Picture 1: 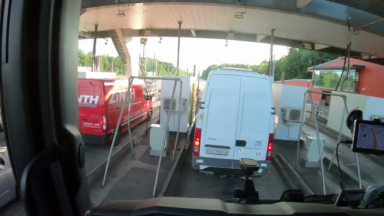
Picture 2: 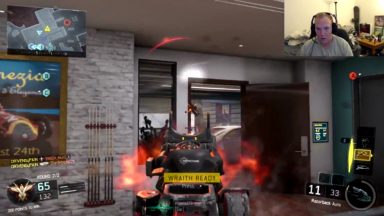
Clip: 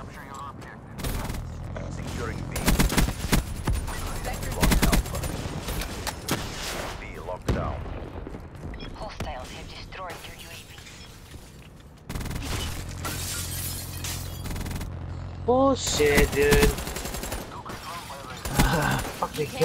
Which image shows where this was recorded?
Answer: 2